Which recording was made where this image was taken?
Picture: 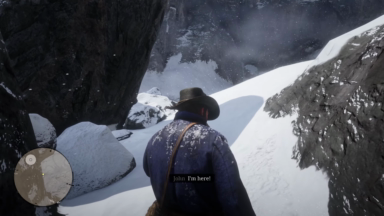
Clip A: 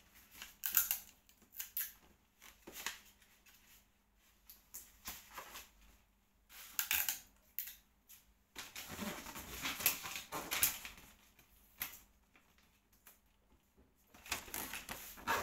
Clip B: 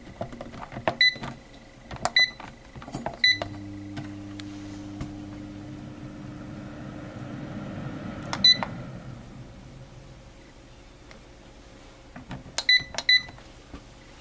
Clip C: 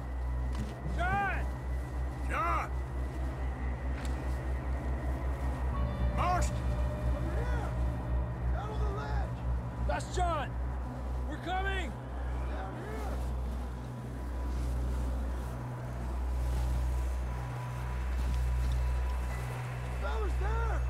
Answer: C